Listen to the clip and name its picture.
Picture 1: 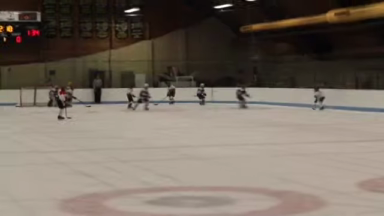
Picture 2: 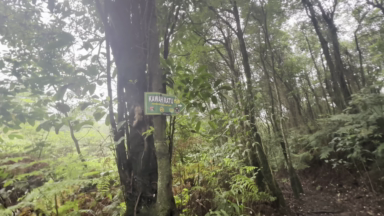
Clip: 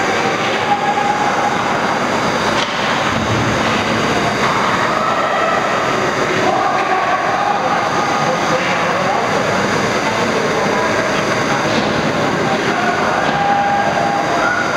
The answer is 1